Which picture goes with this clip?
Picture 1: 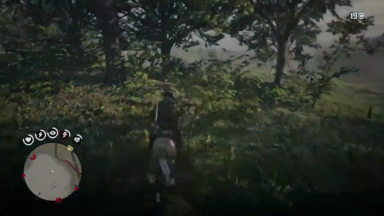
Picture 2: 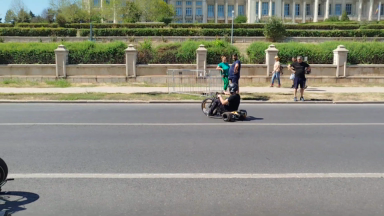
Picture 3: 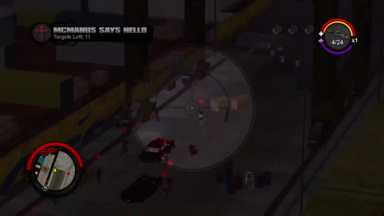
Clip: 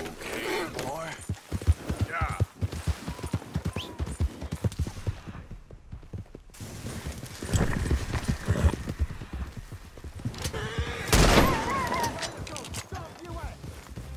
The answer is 1